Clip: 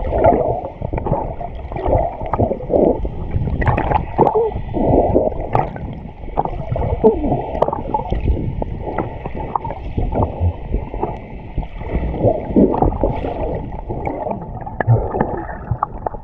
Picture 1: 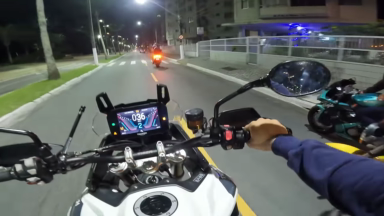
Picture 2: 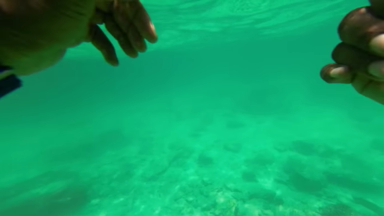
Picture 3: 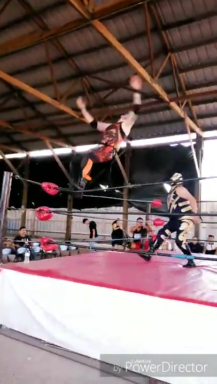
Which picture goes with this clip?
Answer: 2